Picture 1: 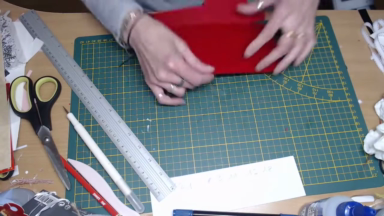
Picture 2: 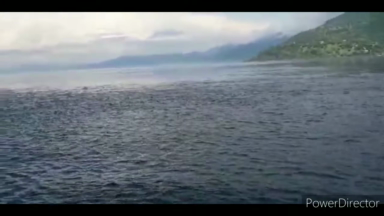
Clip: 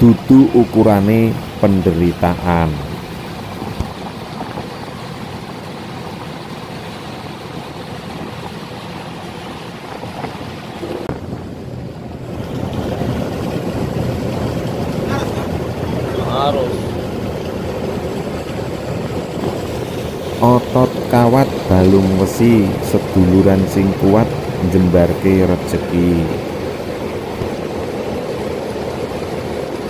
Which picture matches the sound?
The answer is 2